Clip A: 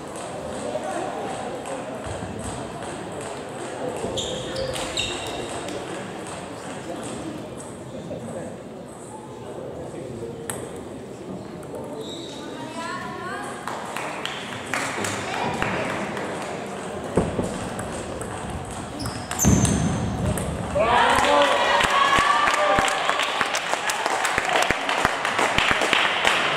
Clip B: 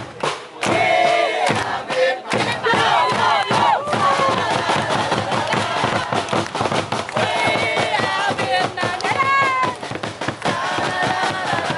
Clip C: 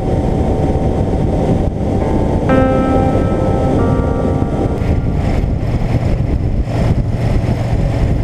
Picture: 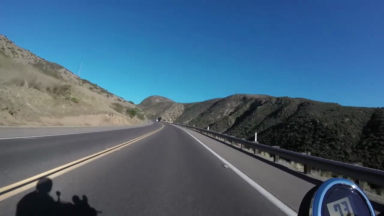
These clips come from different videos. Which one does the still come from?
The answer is C